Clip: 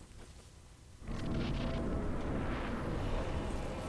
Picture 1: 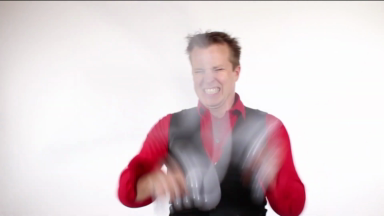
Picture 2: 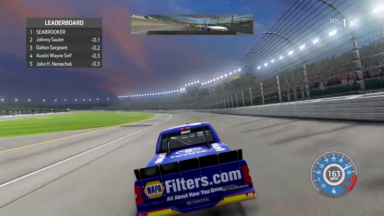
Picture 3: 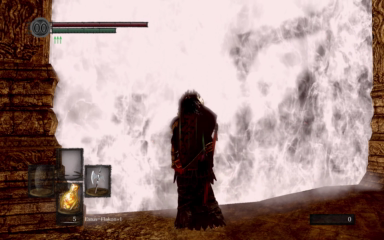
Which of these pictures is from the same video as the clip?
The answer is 3